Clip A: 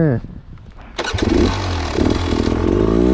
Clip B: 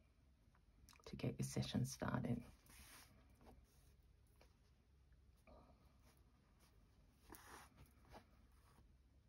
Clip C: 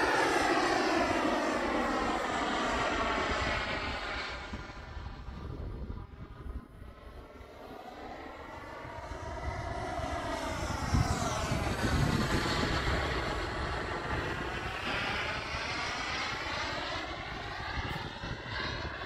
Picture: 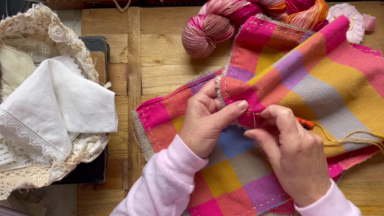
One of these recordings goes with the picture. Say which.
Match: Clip B